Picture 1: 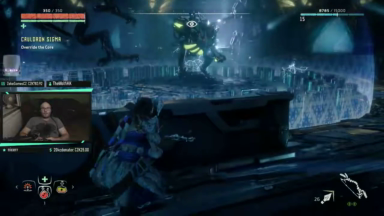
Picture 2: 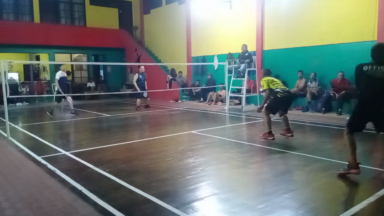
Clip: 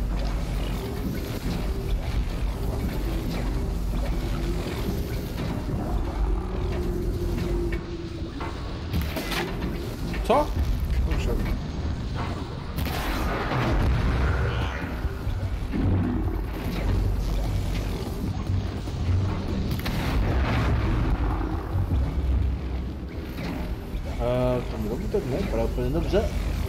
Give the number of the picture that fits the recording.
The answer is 1